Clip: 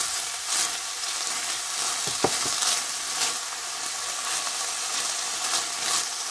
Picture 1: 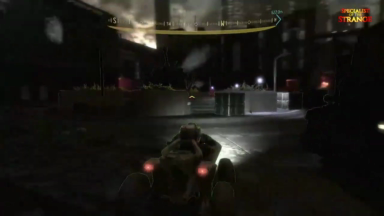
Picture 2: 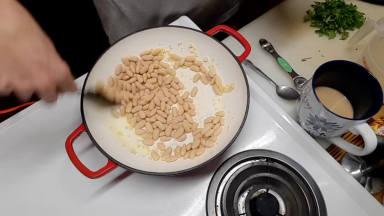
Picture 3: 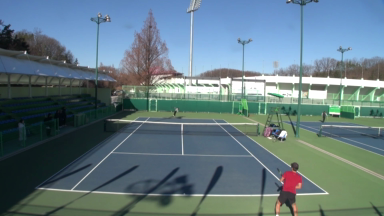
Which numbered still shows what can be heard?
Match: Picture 2